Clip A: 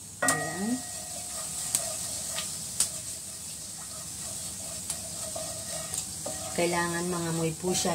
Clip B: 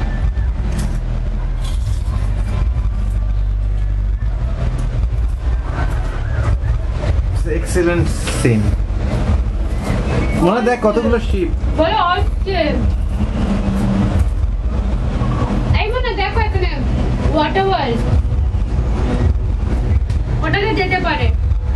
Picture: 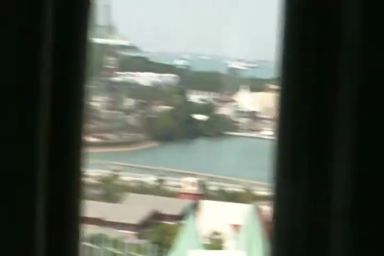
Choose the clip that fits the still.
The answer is B